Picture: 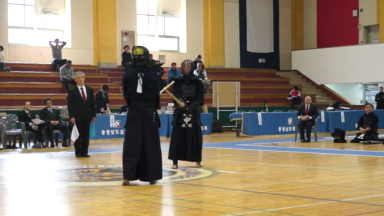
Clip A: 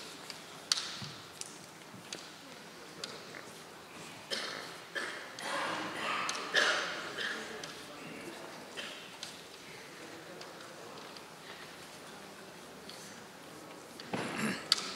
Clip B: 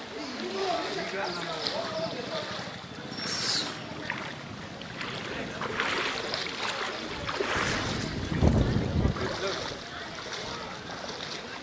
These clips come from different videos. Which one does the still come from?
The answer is A